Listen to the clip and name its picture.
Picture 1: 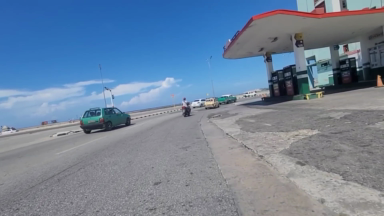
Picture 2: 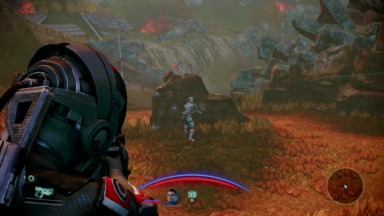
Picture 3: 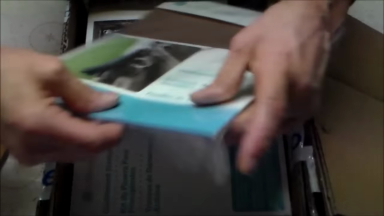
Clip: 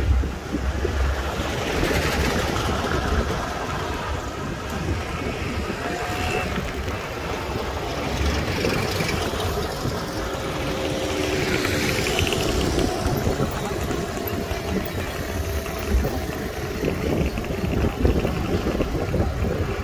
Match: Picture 1